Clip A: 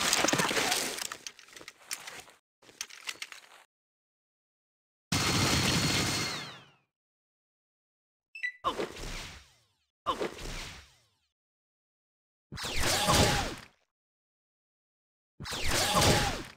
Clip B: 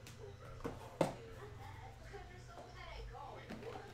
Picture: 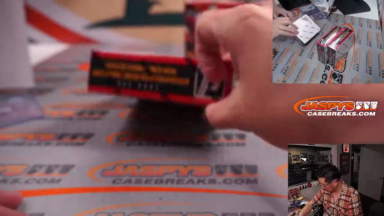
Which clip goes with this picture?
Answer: B